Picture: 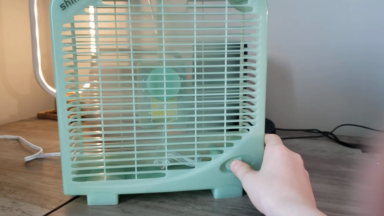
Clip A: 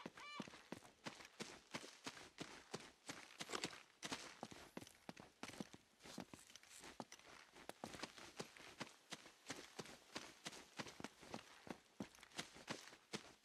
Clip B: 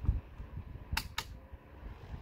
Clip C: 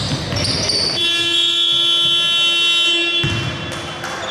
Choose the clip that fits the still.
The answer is B